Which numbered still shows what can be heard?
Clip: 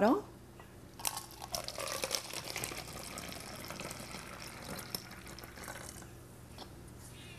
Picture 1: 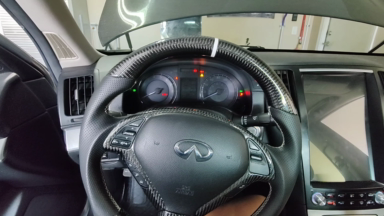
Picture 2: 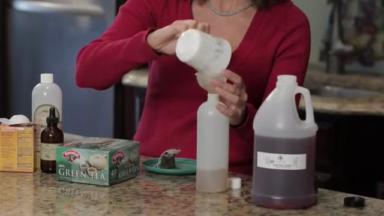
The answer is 2